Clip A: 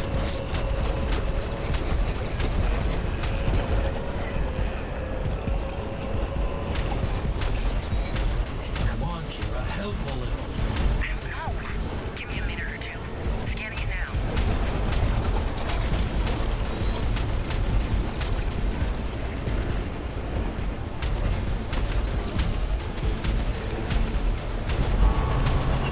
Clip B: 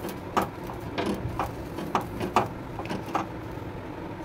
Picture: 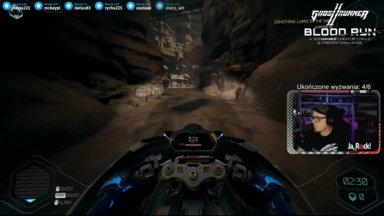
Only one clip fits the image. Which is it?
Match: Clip A